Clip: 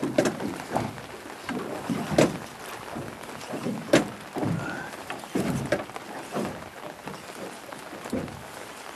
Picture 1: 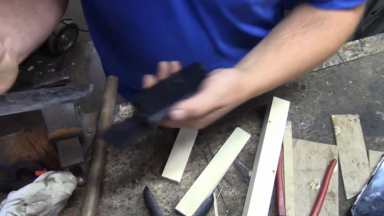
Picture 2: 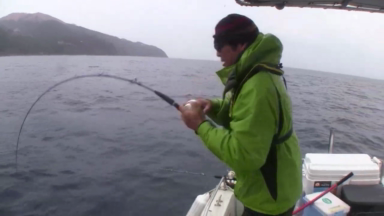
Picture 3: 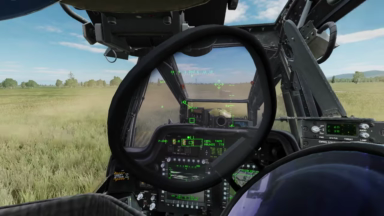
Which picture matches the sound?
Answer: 2